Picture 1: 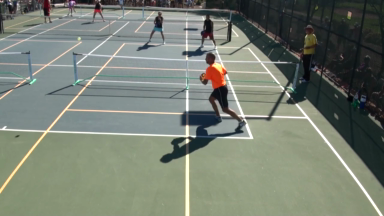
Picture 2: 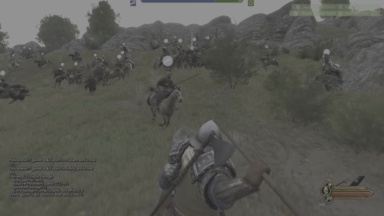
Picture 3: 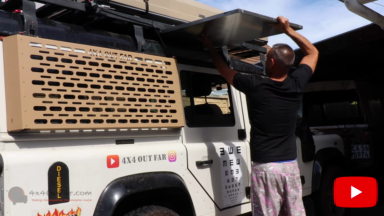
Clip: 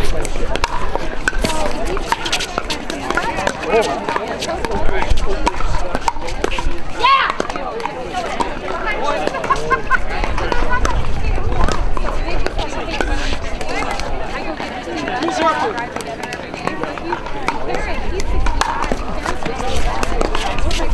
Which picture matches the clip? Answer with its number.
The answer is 1